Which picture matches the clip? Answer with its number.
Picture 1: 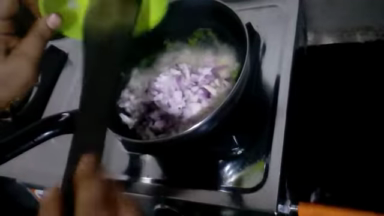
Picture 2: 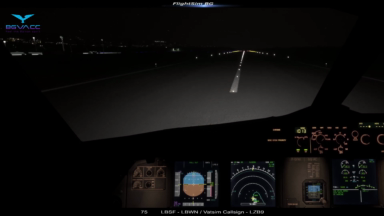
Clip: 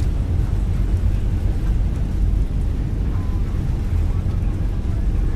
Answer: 2